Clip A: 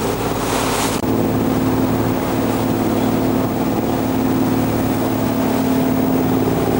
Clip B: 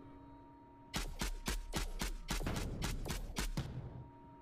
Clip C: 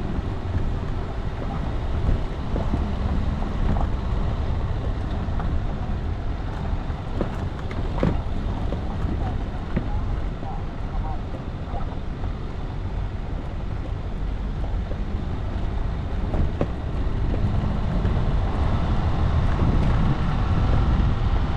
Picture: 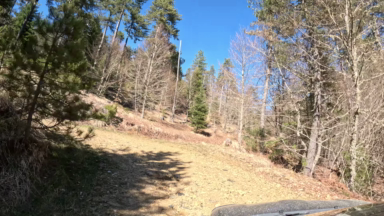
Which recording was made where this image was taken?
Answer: C